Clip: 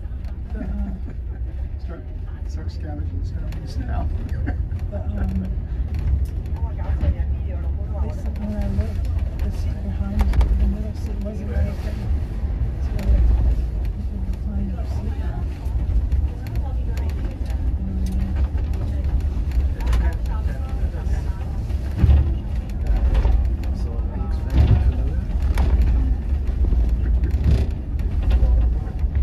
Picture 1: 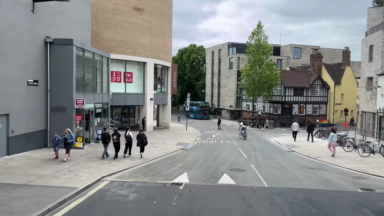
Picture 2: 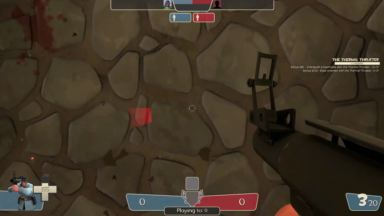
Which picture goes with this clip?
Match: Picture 1